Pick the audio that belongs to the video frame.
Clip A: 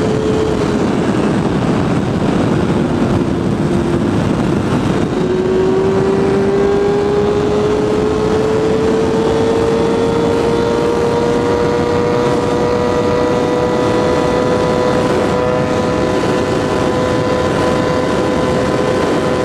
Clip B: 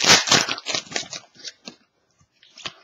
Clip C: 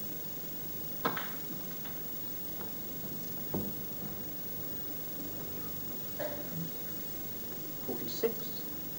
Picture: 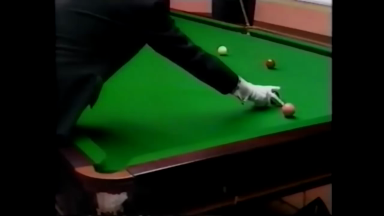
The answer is C